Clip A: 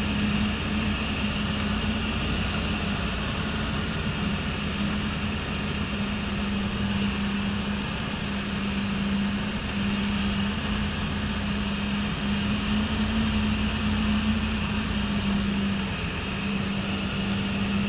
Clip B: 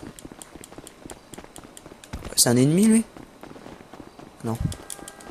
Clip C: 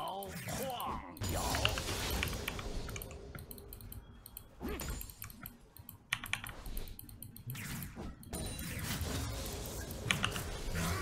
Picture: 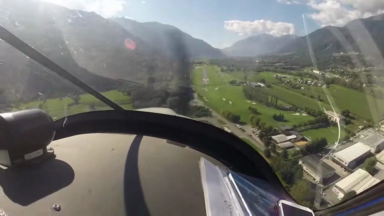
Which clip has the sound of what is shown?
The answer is A